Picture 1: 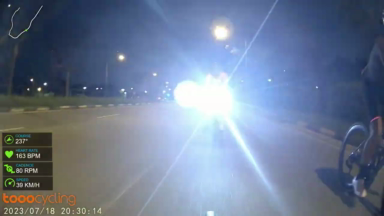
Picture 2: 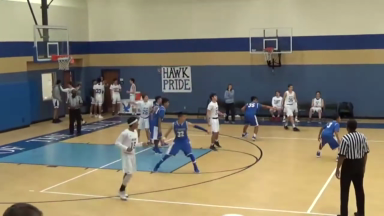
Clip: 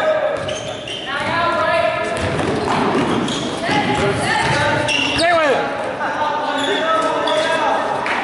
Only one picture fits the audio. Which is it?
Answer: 2